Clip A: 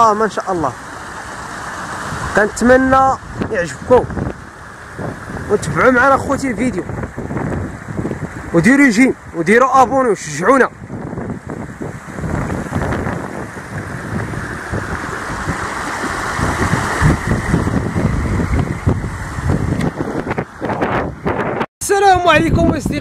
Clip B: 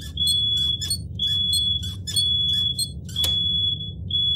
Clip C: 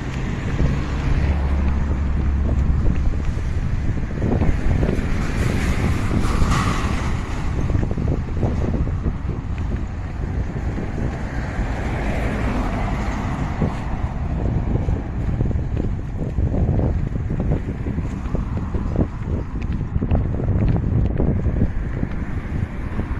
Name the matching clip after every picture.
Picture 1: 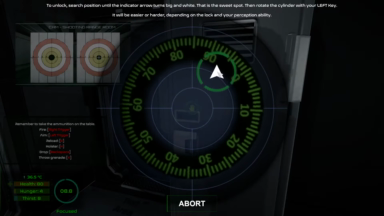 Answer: B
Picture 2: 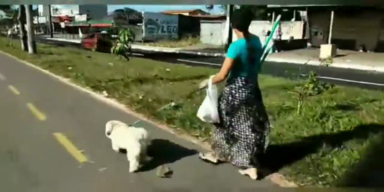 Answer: C